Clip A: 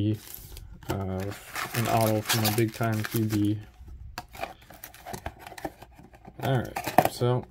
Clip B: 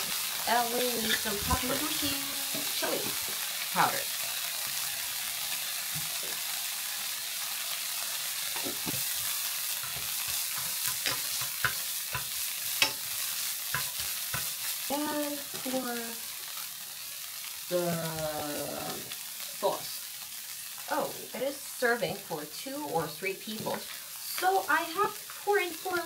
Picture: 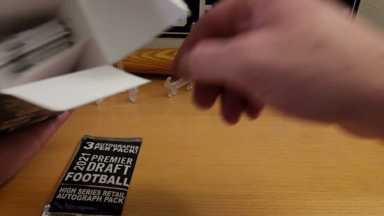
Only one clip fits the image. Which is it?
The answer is A